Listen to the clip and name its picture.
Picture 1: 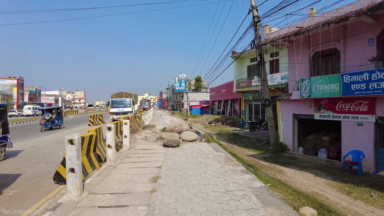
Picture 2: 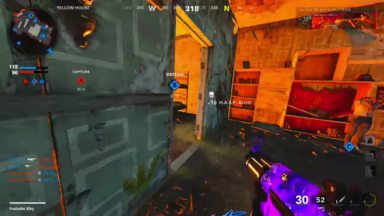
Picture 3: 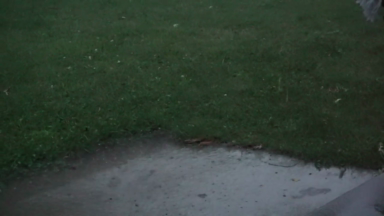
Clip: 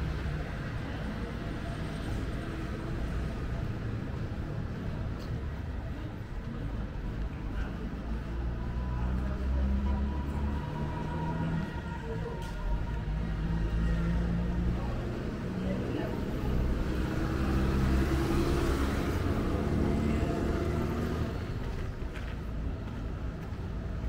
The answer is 1